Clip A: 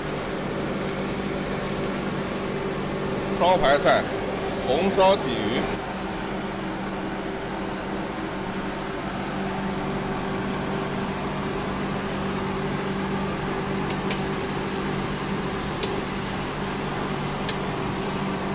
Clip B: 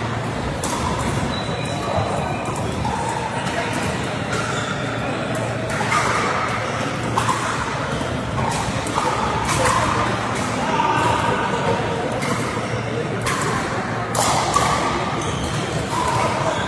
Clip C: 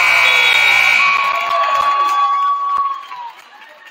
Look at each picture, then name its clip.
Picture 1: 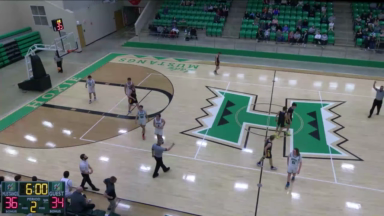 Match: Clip C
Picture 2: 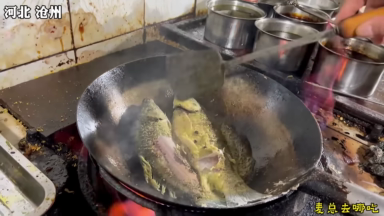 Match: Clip A